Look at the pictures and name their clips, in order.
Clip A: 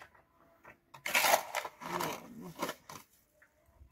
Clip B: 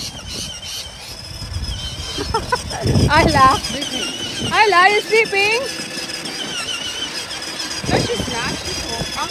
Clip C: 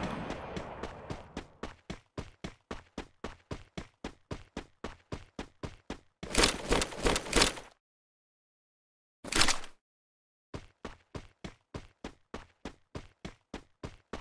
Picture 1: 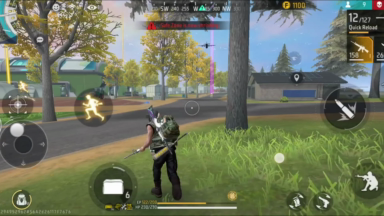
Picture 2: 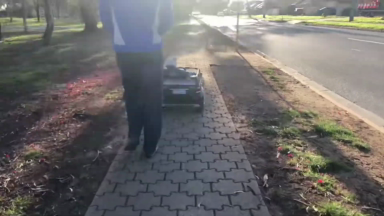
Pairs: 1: C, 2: B